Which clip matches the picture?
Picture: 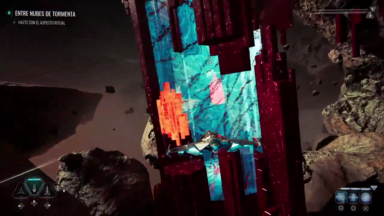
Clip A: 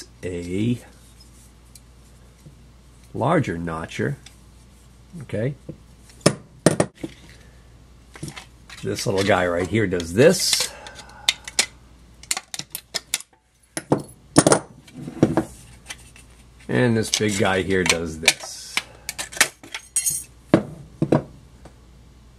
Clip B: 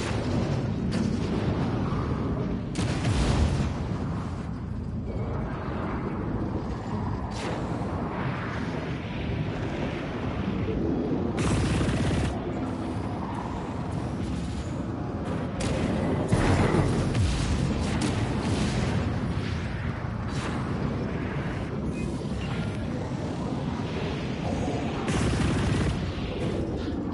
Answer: B